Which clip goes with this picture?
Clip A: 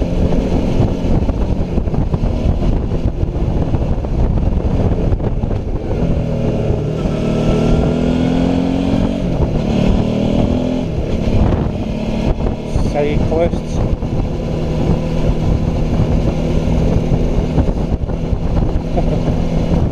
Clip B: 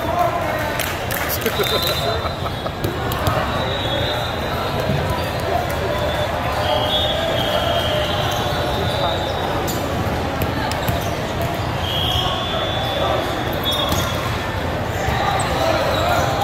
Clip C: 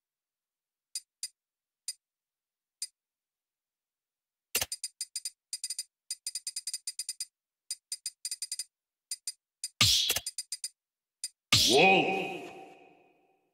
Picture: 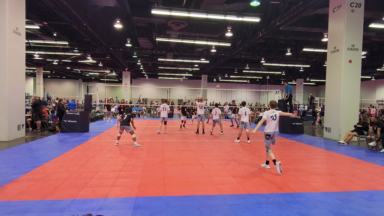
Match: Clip B